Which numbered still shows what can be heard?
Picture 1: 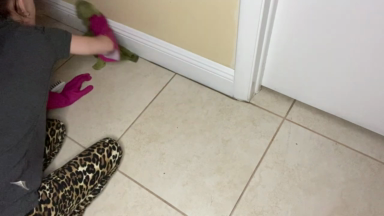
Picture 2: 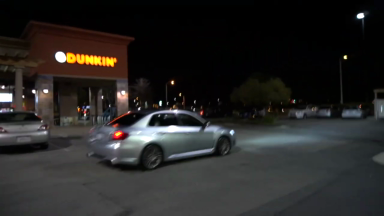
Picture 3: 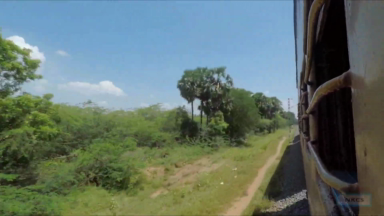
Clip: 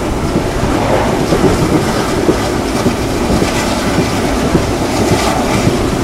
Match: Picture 3